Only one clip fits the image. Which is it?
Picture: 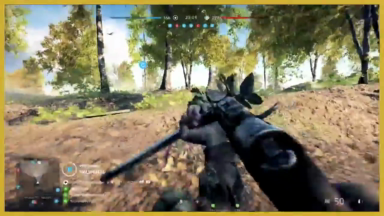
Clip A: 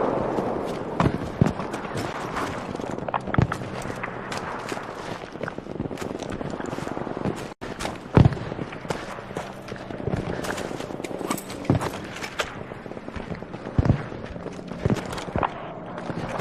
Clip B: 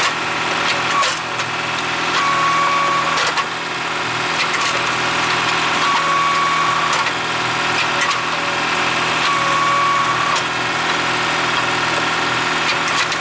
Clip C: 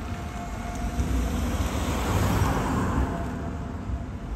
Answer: A